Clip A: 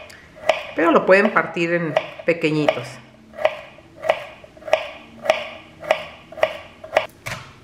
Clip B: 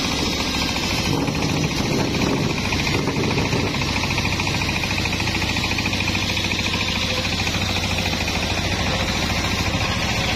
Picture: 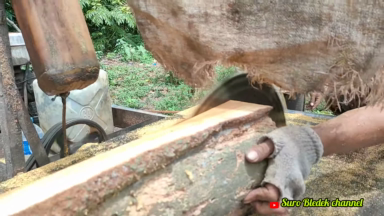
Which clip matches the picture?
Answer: B